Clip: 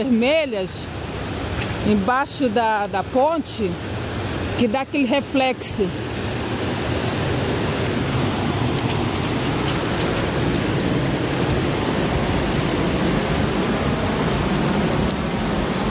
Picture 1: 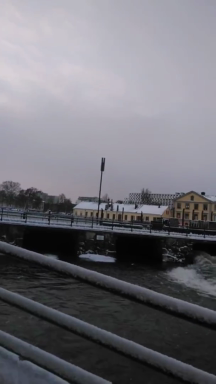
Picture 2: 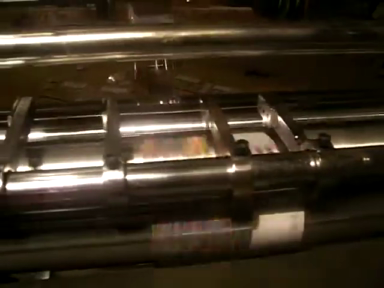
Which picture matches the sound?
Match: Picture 1